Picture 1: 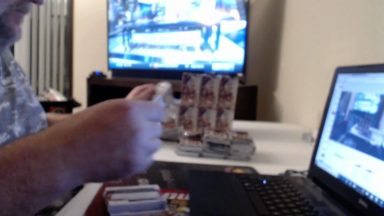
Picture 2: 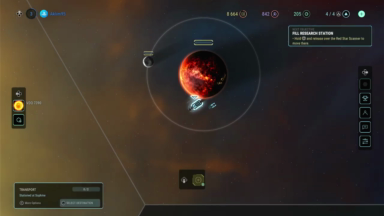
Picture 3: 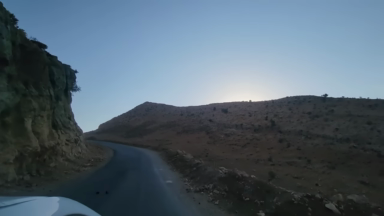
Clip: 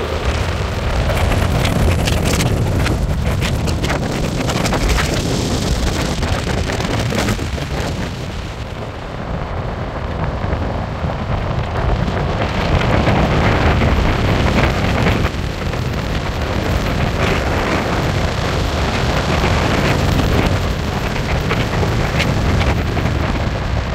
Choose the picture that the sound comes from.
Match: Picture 3